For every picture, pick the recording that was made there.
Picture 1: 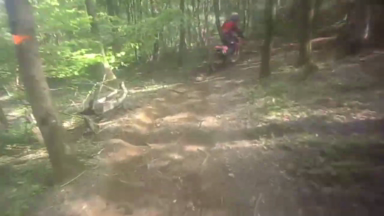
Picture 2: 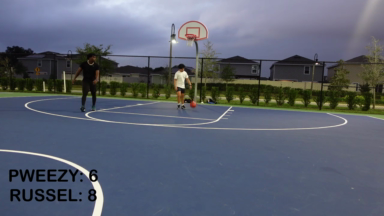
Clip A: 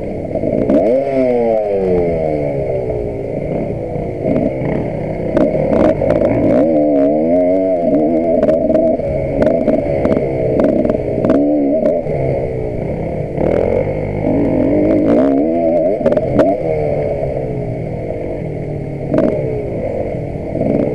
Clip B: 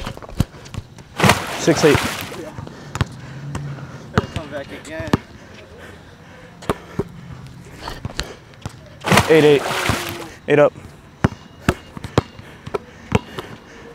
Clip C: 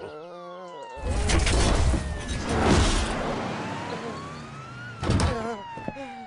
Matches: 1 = A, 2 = B